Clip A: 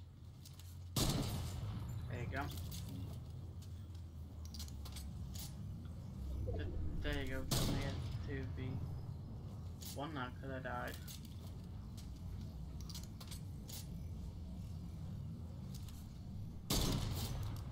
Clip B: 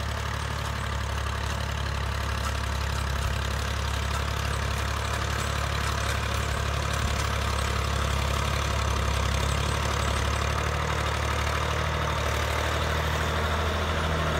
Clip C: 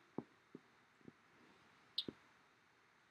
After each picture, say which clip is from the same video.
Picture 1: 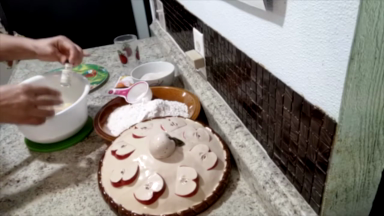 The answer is C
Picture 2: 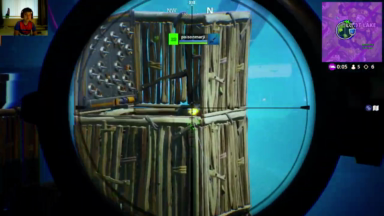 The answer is A